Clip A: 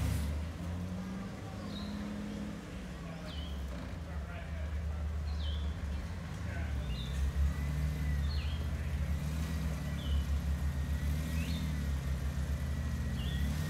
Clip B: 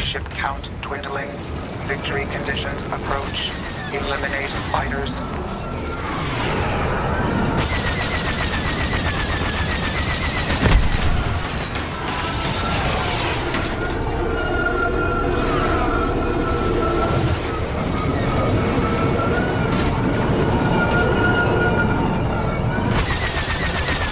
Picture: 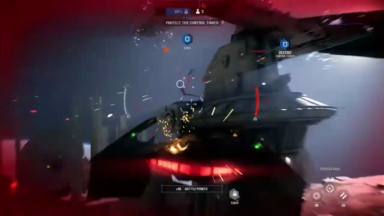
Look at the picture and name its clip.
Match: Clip B